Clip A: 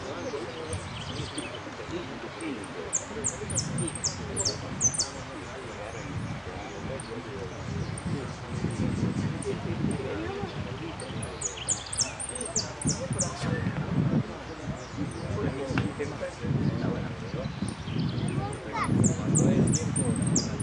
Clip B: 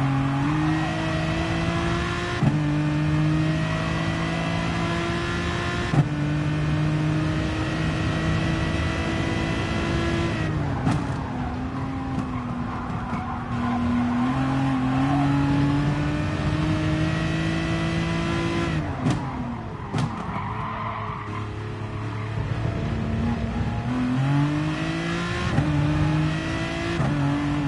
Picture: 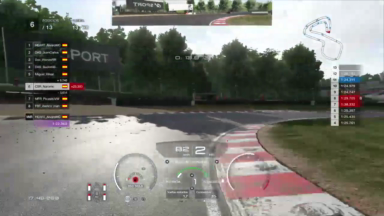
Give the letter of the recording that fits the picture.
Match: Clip B